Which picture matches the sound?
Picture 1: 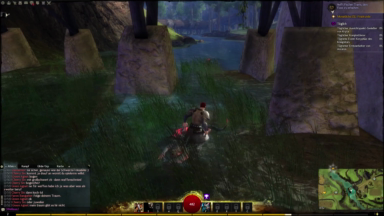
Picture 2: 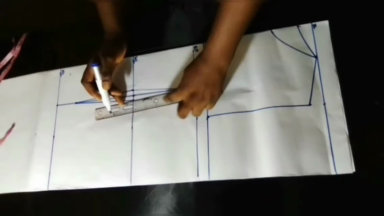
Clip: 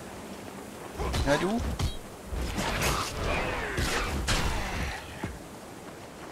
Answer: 1